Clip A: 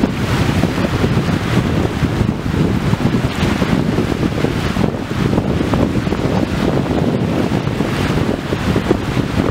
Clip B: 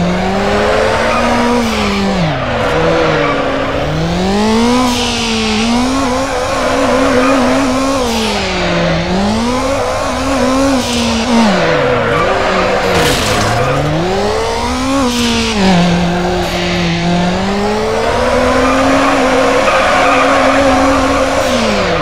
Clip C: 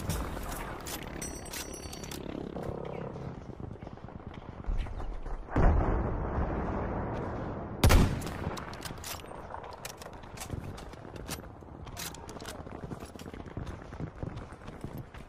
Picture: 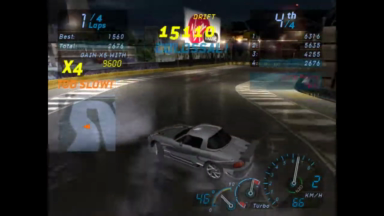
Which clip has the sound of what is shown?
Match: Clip B